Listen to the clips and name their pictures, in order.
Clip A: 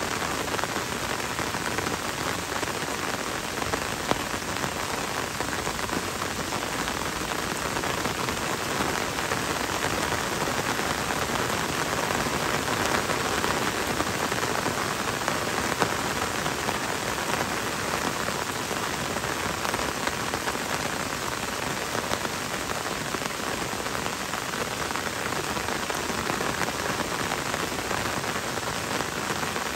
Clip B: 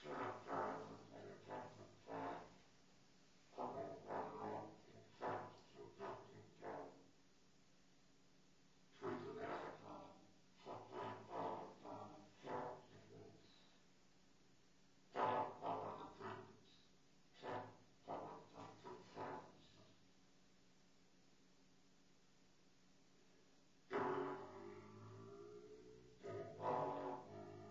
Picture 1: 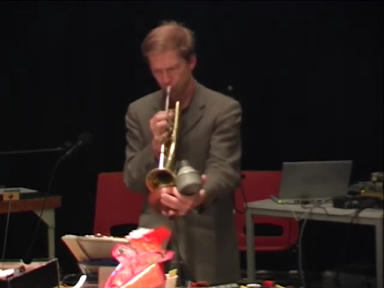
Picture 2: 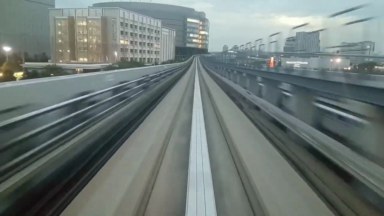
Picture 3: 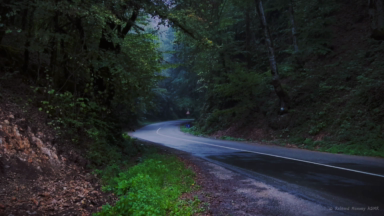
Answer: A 3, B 1